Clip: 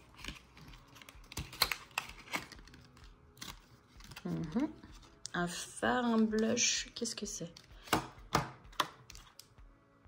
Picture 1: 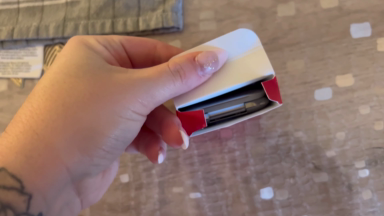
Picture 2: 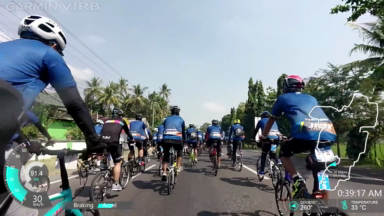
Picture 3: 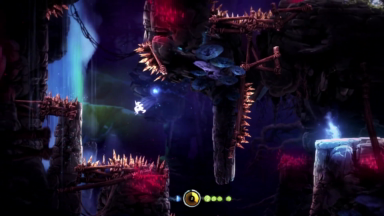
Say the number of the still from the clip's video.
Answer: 1